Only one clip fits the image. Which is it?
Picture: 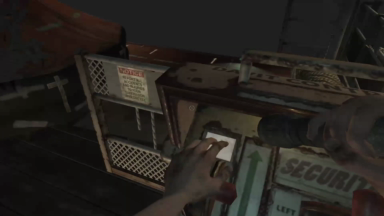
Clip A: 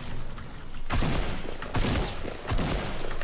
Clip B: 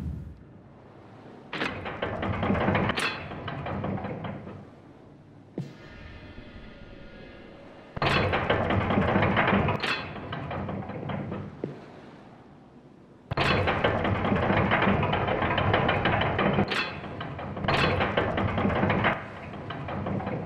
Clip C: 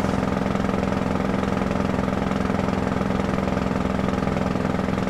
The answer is B